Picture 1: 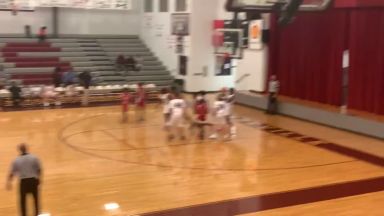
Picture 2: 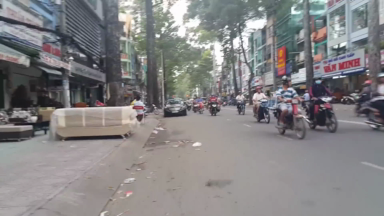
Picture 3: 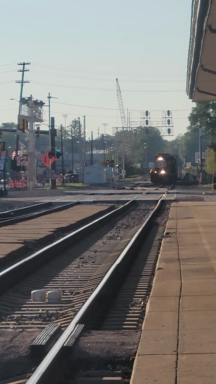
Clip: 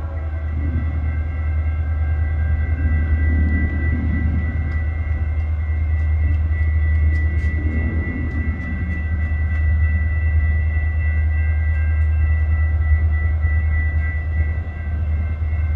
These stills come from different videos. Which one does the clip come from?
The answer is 3